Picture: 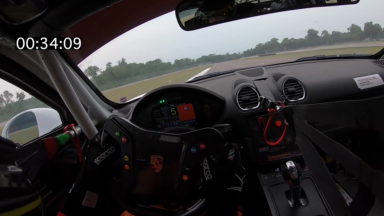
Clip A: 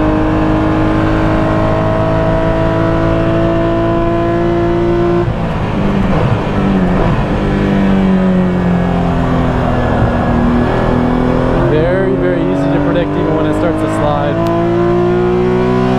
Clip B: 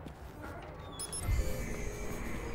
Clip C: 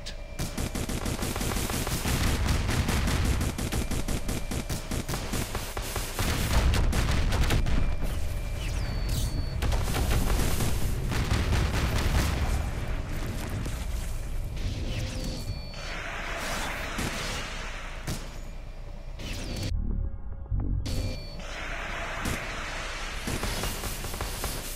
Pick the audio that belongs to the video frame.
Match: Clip A